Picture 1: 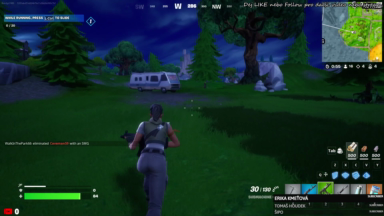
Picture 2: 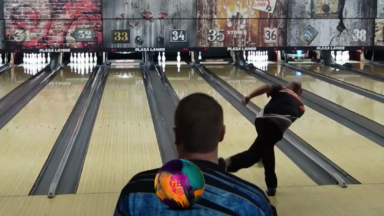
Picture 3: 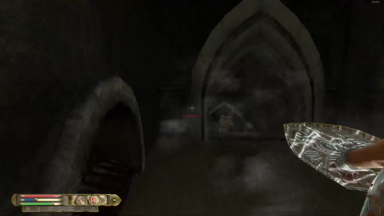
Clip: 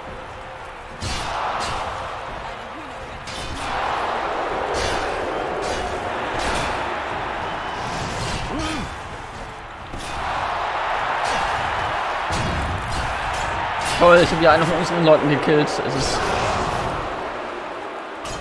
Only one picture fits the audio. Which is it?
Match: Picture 3